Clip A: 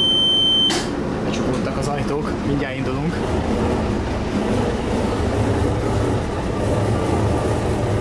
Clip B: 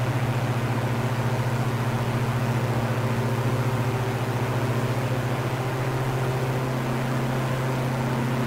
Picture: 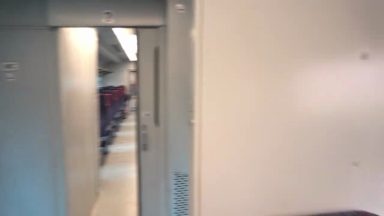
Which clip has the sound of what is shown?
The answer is A